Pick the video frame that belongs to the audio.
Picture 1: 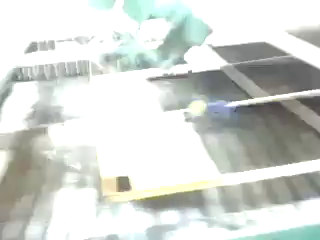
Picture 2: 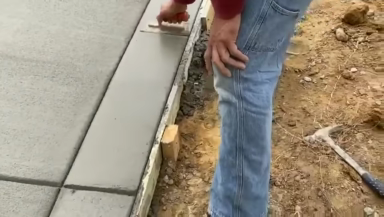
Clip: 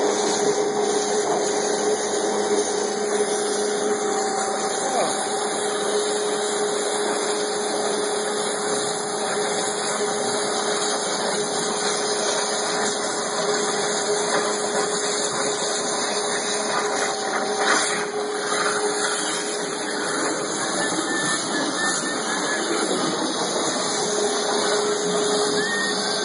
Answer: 1